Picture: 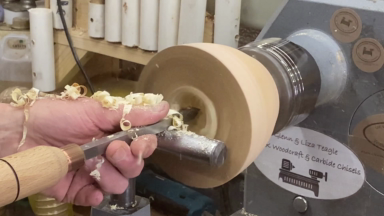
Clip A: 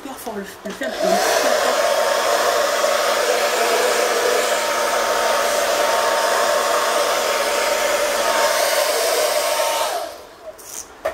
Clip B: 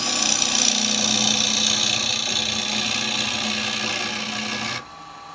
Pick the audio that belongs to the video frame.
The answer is B